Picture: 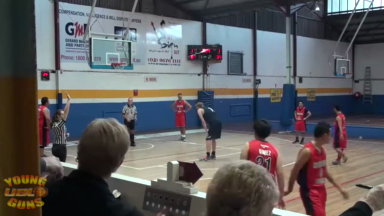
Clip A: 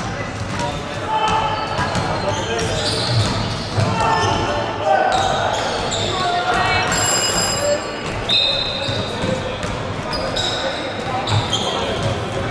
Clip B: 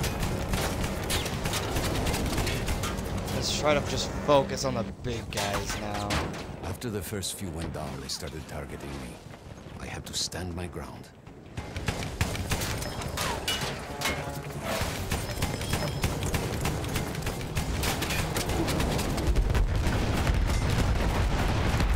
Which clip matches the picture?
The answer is A